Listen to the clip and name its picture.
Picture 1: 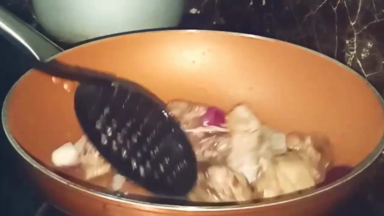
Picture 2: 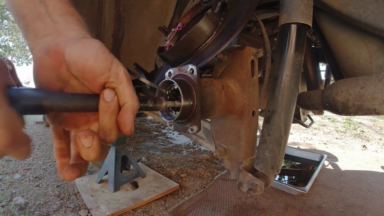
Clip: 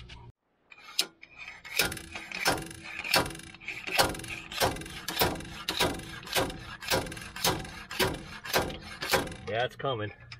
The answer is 2